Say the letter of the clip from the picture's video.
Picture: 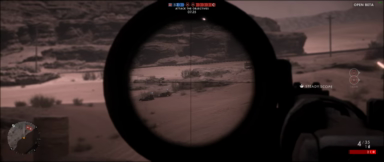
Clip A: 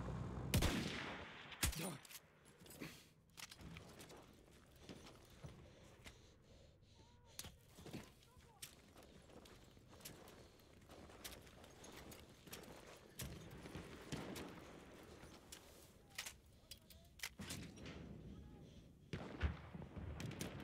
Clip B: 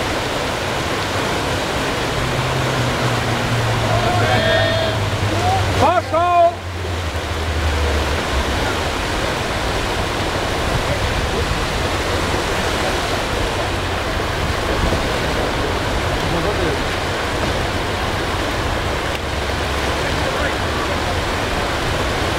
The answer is A